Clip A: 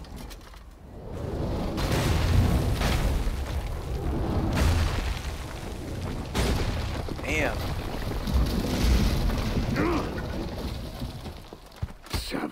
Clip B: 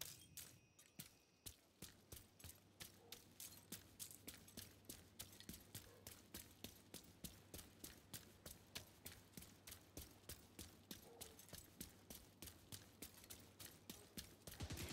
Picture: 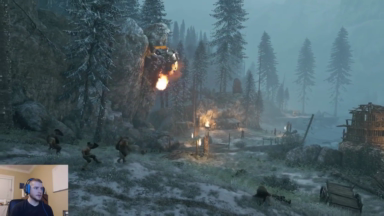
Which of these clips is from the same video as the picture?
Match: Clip A